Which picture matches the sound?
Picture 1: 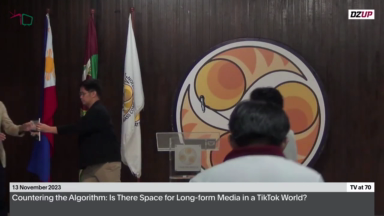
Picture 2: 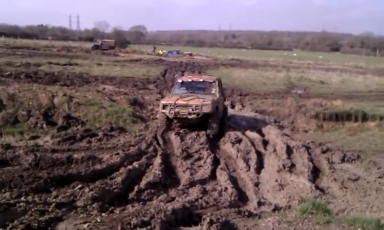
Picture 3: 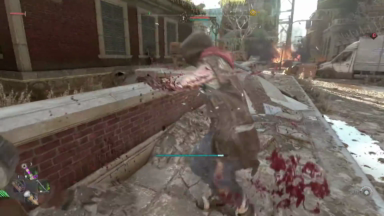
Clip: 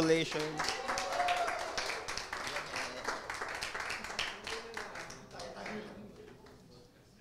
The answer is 1